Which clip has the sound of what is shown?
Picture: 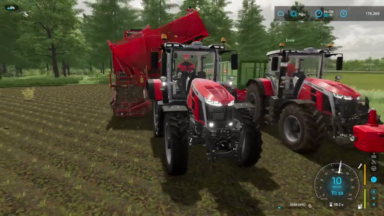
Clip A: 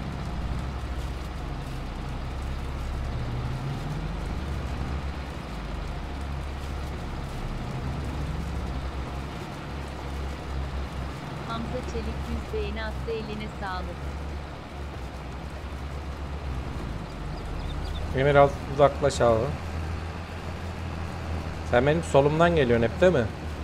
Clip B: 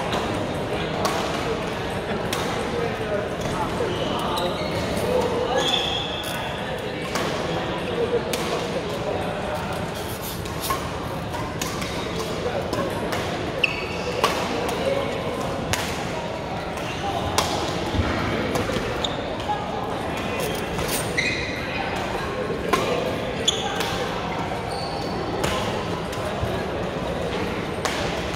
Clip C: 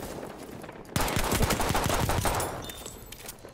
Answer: A